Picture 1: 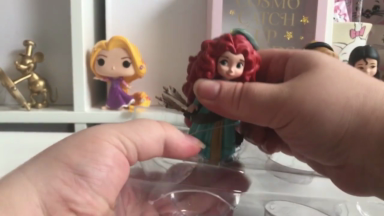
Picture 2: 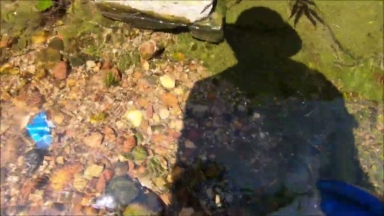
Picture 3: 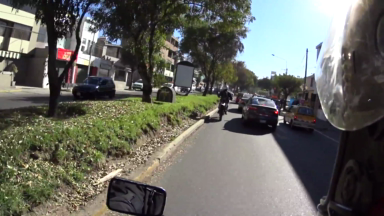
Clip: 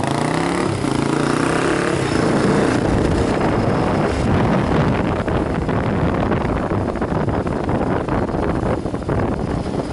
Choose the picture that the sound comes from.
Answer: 3